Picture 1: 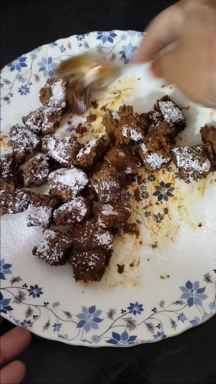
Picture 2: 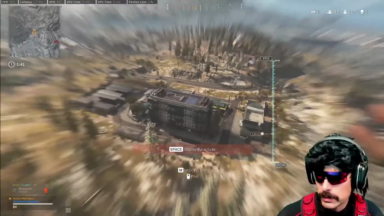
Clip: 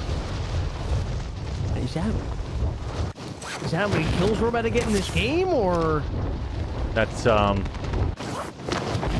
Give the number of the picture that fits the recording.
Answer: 2